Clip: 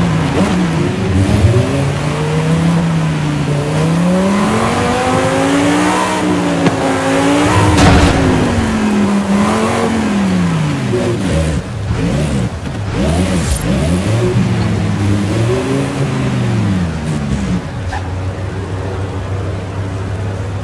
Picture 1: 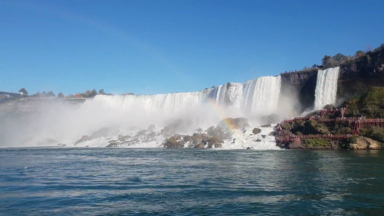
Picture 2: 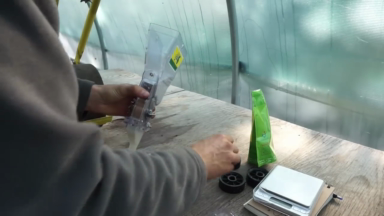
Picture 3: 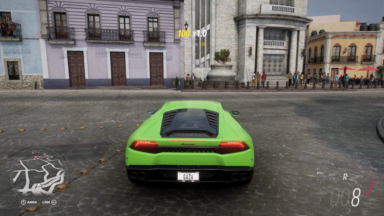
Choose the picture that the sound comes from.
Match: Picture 3